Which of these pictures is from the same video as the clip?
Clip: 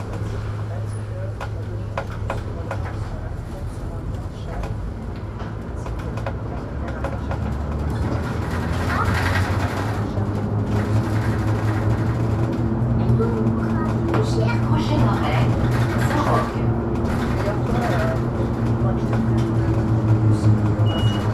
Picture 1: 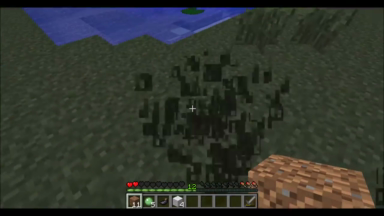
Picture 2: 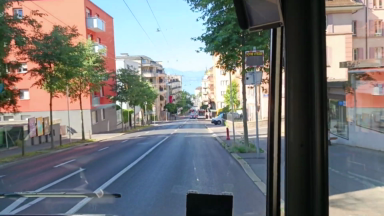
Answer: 2